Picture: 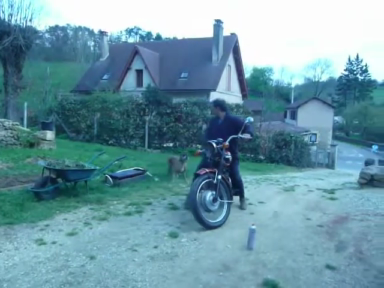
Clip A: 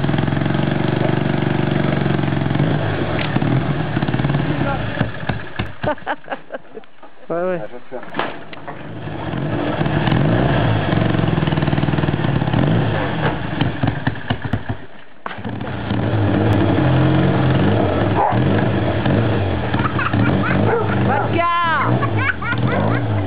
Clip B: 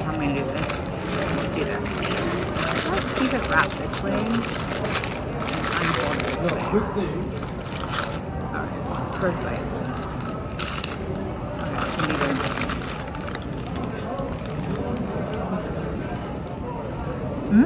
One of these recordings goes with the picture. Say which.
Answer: A